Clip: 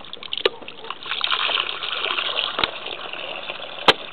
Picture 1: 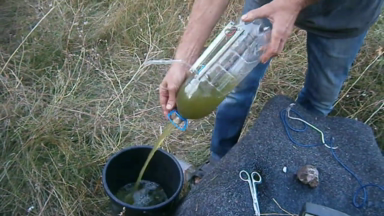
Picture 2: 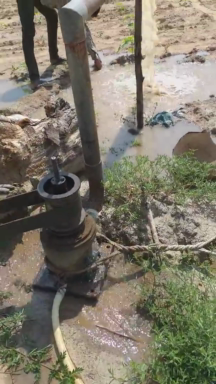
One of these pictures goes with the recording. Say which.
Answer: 1